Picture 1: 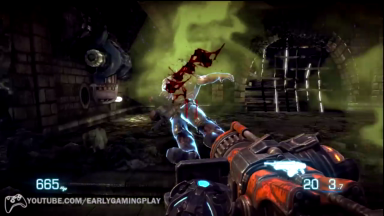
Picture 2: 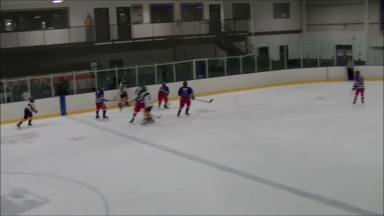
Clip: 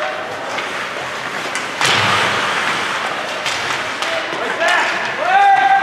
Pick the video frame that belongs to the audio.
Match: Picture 2